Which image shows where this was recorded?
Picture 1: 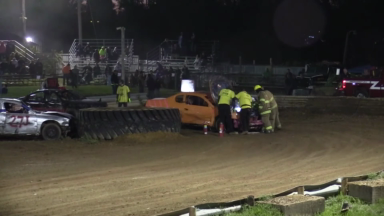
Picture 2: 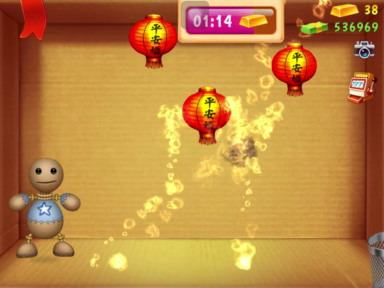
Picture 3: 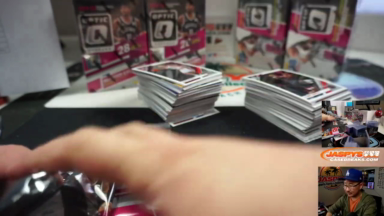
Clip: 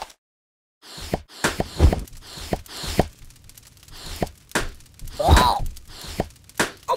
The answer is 2